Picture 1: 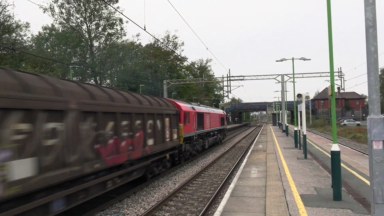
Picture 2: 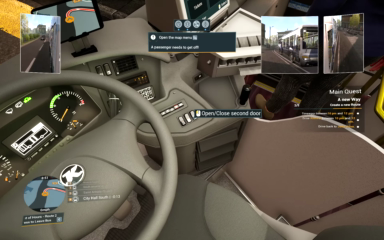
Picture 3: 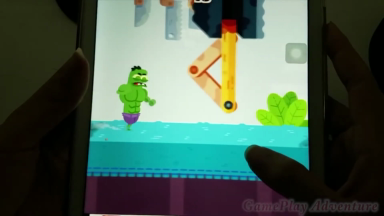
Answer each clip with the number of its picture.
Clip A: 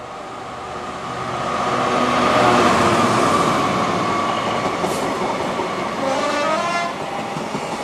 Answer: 1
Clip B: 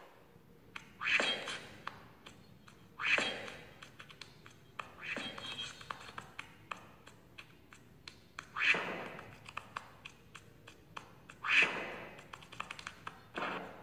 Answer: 3